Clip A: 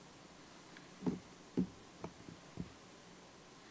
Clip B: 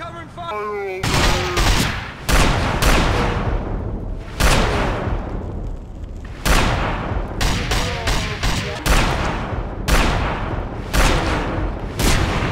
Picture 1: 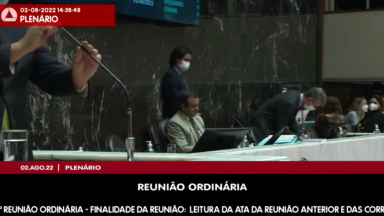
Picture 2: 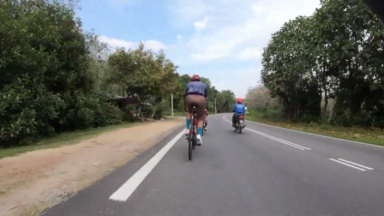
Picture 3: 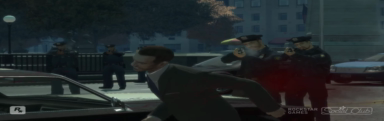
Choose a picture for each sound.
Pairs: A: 1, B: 3